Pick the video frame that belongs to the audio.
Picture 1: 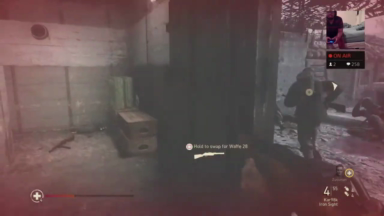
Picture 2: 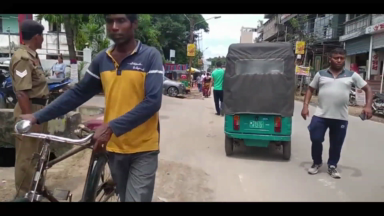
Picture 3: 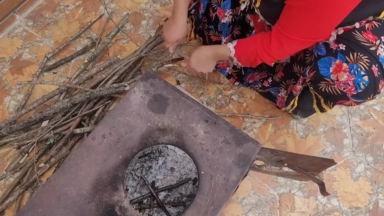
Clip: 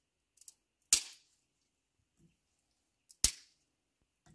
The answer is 3